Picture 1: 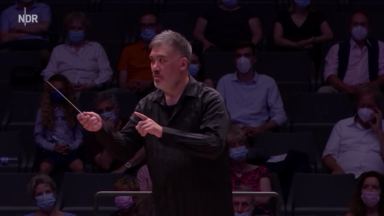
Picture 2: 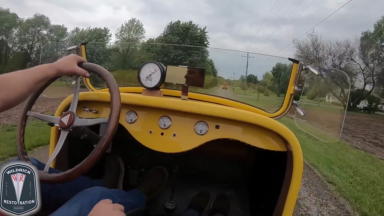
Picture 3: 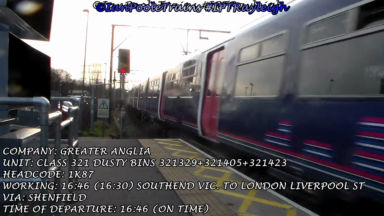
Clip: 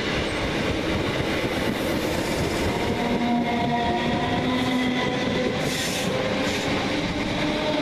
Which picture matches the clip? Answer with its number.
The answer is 3